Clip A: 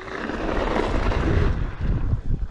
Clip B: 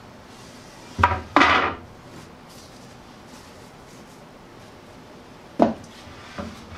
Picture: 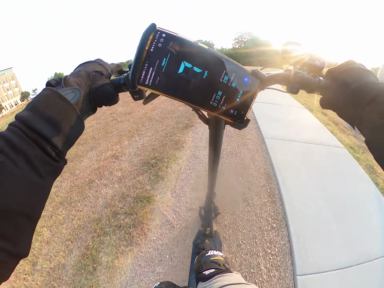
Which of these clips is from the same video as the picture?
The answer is A